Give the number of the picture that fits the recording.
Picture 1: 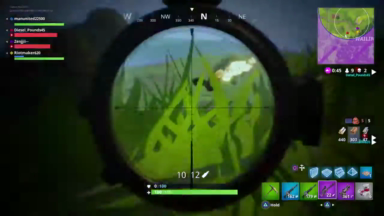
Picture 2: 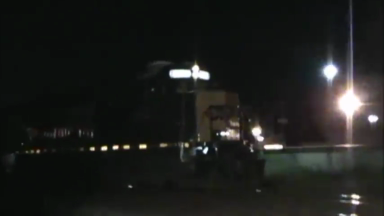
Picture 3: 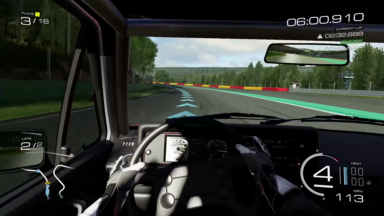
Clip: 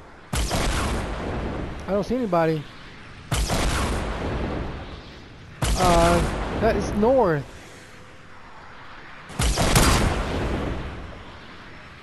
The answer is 1